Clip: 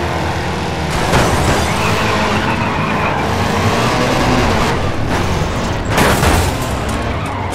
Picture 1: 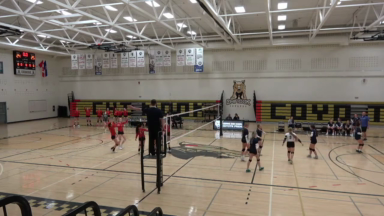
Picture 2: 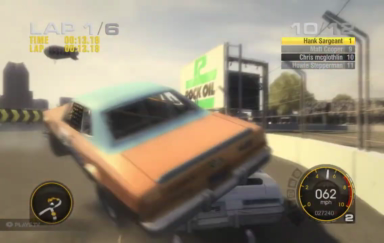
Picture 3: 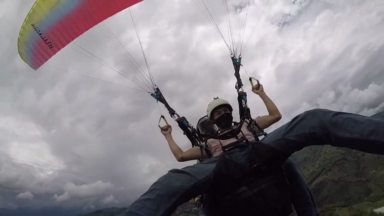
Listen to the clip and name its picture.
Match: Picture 2